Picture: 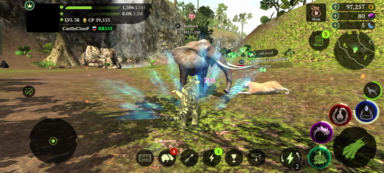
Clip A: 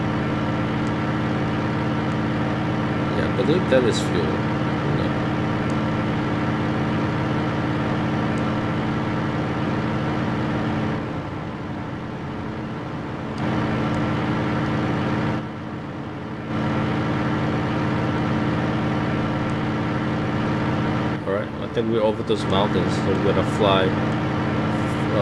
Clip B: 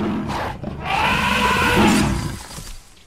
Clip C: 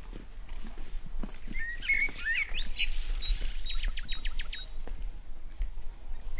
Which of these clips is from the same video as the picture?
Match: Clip B